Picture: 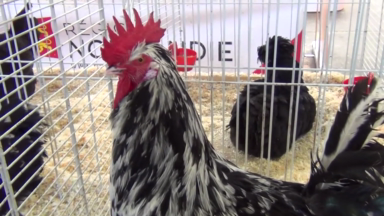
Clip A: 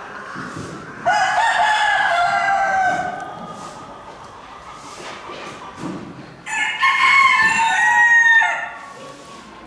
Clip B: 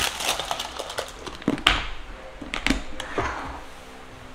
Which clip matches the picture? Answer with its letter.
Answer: A